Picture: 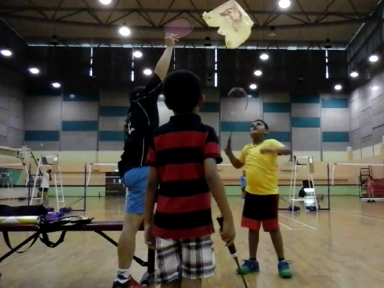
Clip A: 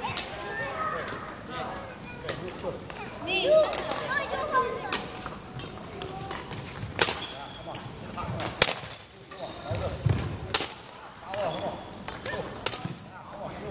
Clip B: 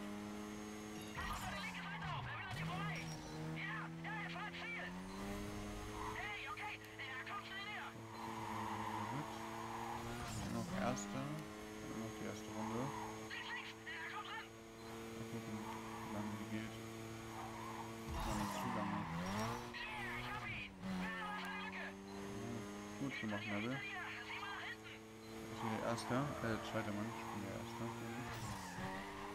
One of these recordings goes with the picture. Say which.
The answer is A